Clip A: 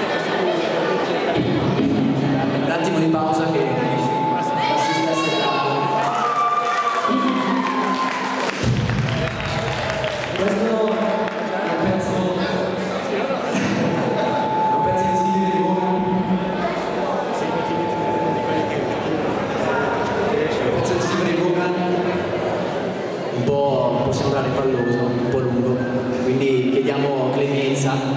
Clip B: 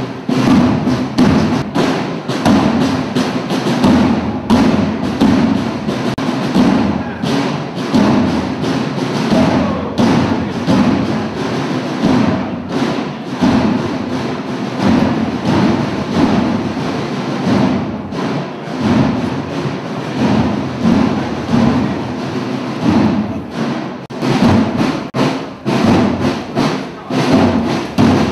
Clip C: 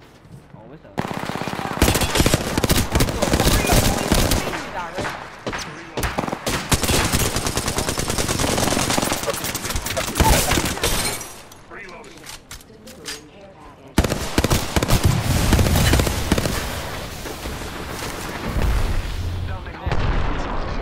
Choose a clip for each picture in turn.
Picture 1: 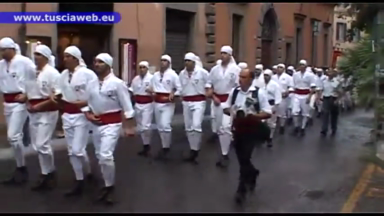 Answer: B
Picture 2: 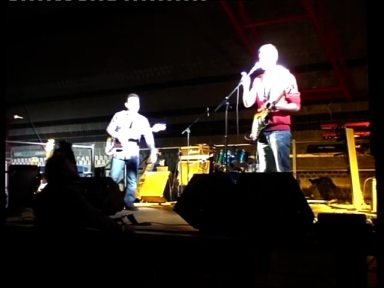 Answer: A